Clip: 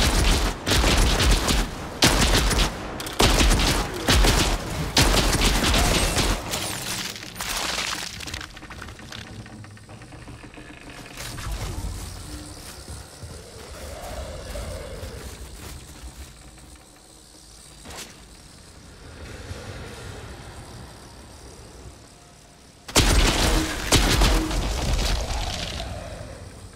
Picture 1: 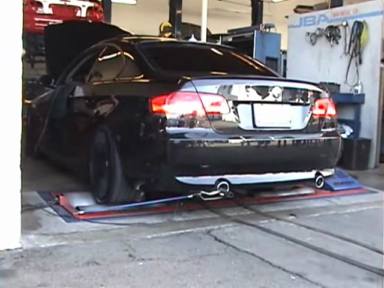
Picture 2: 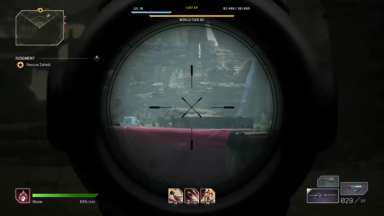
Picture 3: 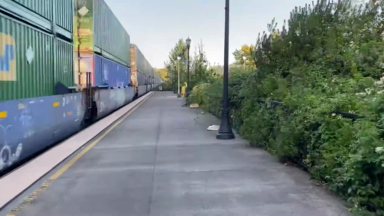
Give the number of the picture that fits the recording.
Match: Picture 2